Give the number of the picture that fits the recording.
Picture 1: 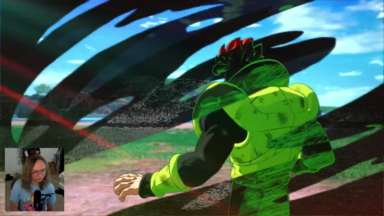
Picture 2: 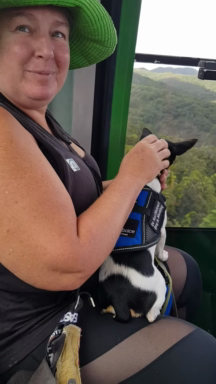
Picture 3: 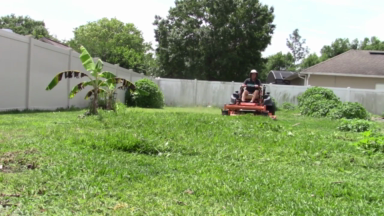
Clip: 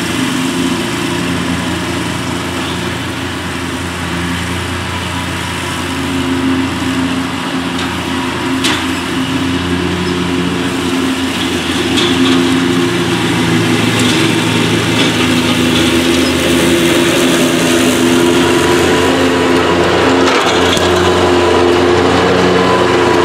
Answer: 3